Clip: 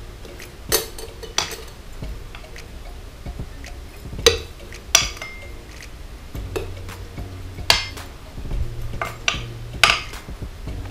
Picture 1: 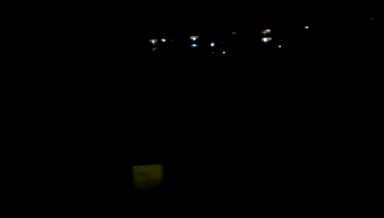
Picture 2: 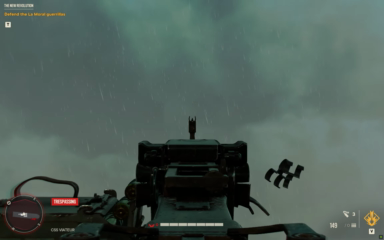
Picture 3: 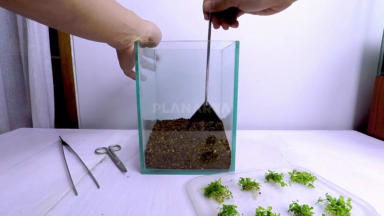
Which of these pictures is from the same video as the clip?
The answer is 3